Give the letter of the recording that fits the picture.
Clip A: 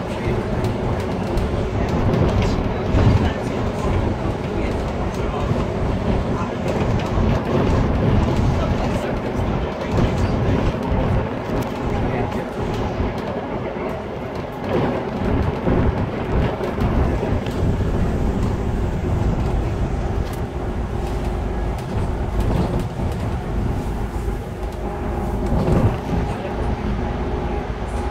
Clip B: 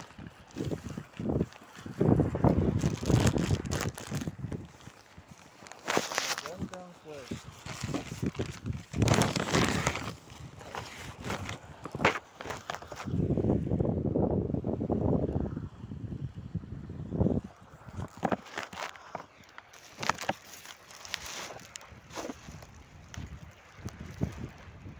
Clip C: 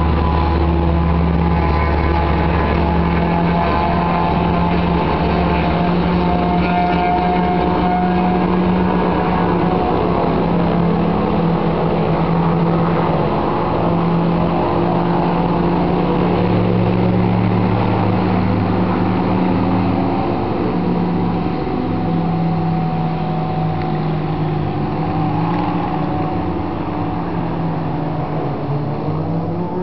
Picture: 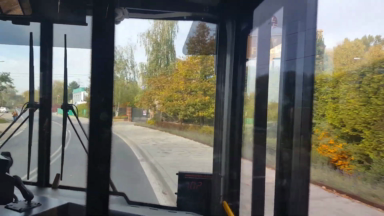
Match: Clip A